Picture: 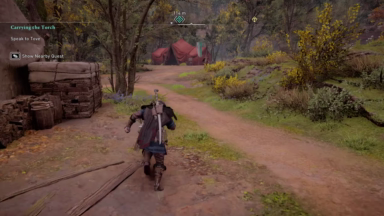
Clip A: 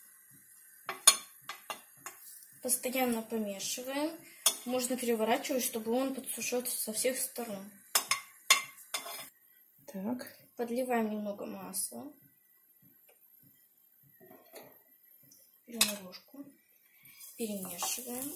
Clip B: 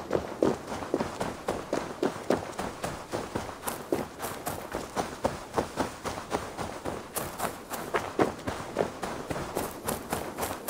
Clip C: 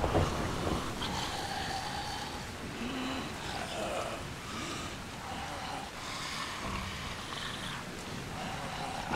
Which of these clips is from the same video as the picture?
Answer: B